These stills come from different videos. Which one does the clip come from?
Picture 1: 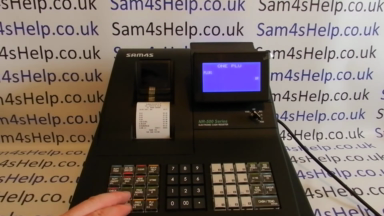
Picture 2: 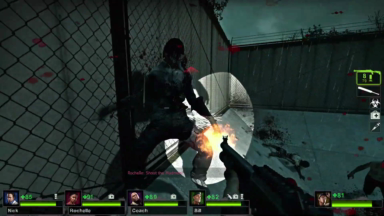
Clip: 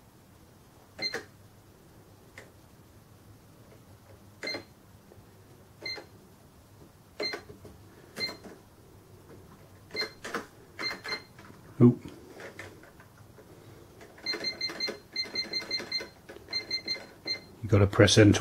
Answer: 1